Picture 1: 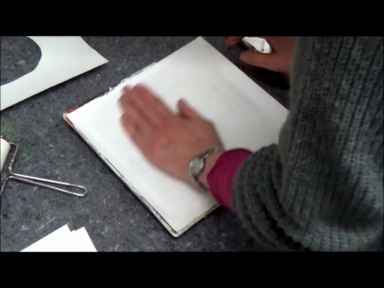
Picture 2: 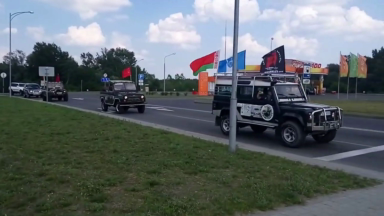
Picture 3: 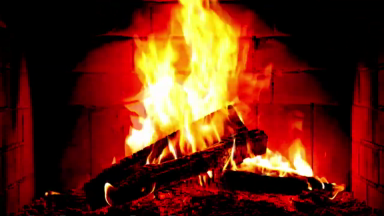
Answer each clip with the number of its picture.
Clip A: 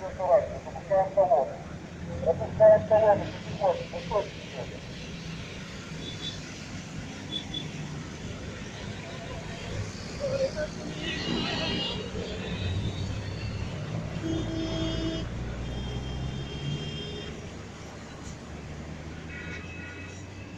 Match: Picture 2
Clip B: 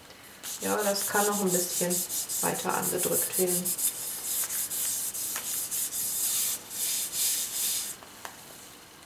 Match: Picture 1